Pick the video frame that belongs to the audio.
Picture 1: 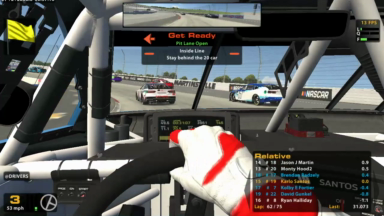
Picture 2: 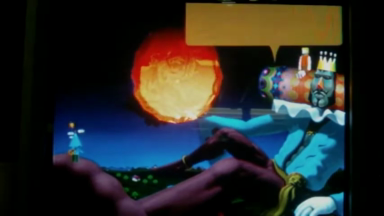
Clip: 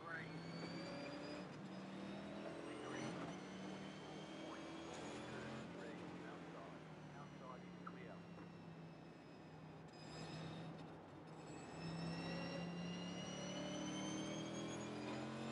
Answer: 1